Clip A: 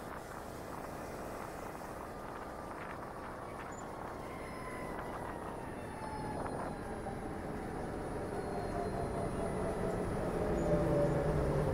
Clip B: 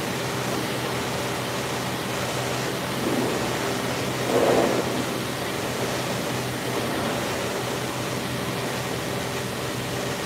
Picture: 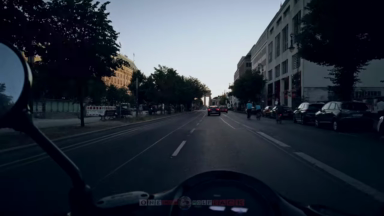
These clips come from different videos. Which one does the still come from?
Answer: A